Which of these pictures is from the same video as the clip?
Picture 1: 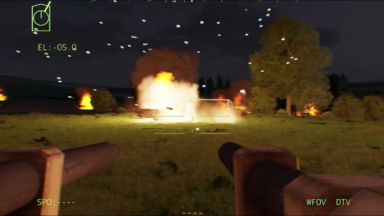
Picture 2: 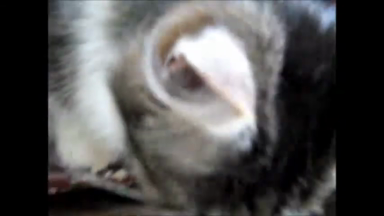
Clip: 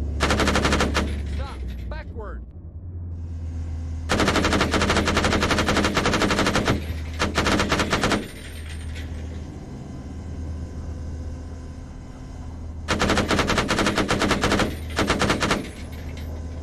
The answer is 1